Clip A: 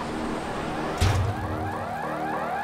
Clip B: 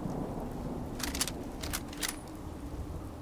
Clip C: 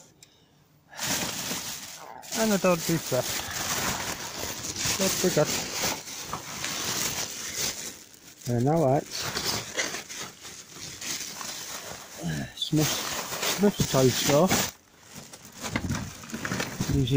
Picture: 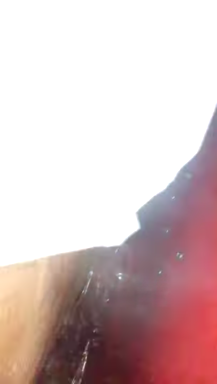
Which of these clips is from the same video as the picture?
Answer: C